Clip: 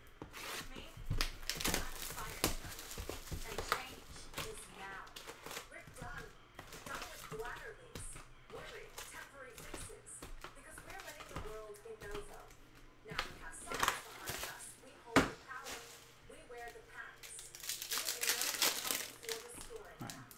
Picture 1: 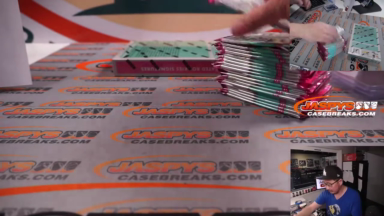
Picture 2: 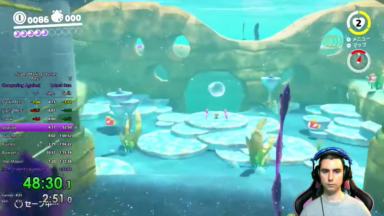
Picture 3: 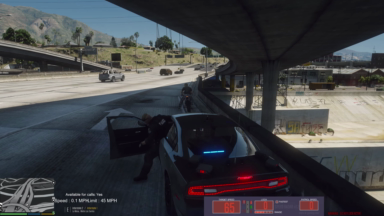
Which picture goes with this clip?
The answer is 1